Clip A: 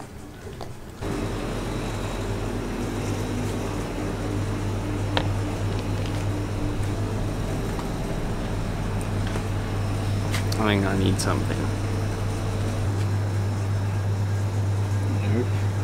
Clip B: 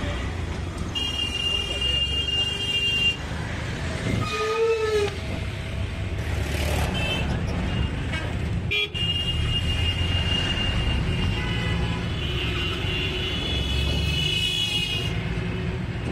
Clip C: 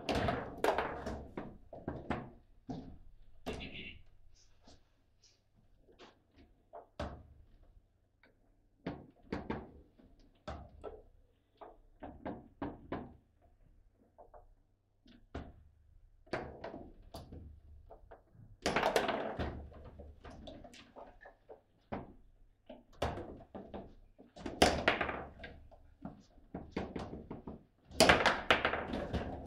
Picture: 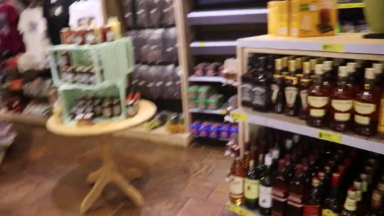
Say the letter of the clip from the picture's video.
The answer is A